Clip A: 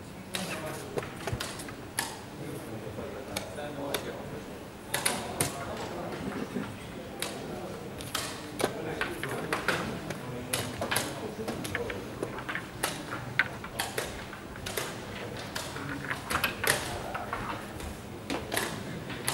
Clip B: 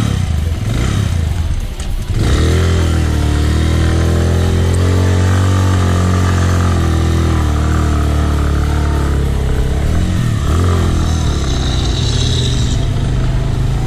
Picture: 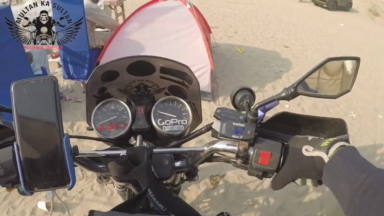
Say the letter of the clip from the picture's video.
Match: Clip B